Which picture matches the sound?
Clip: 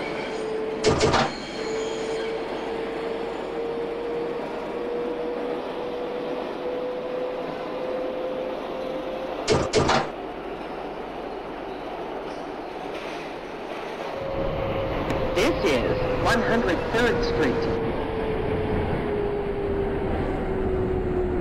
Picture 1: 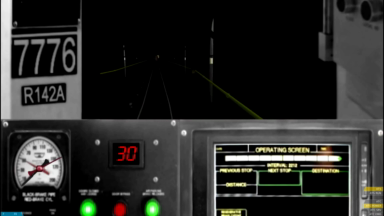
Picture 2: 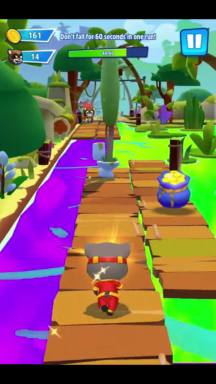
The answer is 1